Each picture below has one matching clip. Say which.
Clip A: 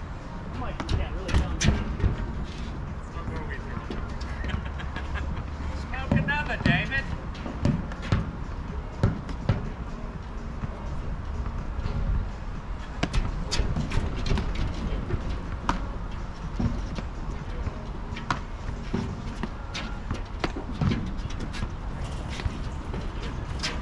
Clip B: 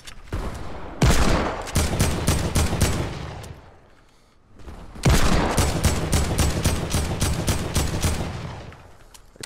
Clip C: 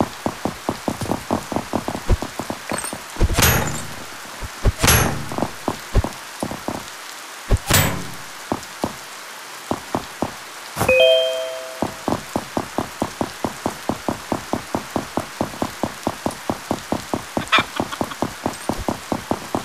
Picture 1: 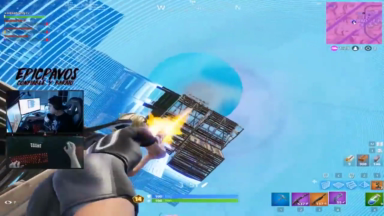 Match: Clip B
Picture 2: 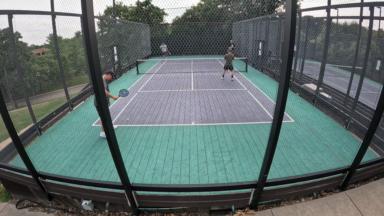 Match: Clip A